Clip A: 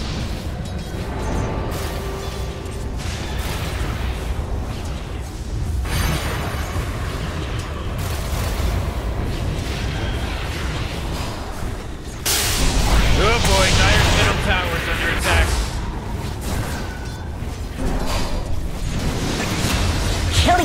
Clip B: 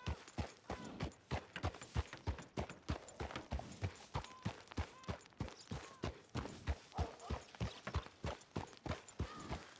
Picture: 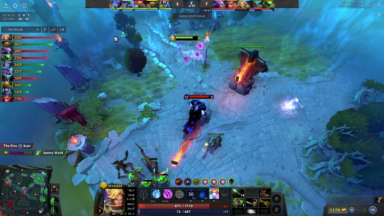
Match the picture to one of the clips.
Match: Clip A